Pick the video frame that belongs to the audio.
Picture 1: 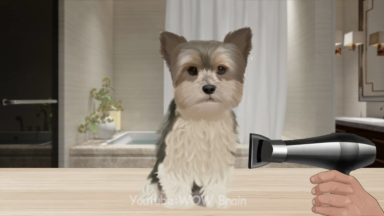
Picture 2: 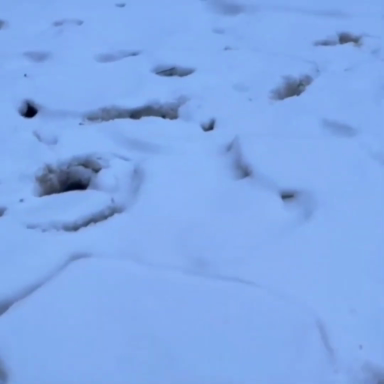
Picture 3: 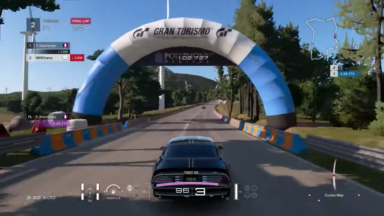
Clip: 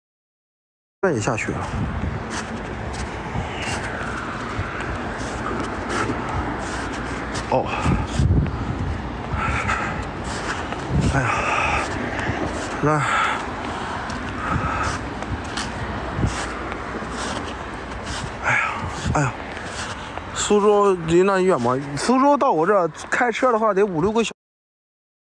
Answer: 2